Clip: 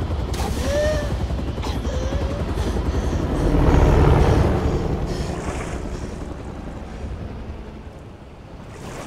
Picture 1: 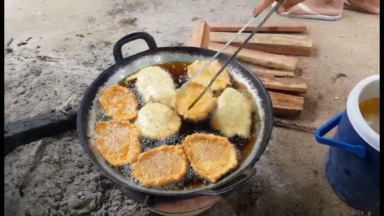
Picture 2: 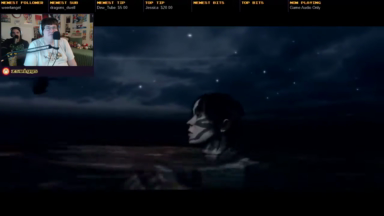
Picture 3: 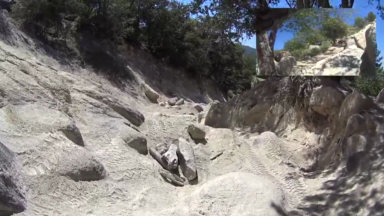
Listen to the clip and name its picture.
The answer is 2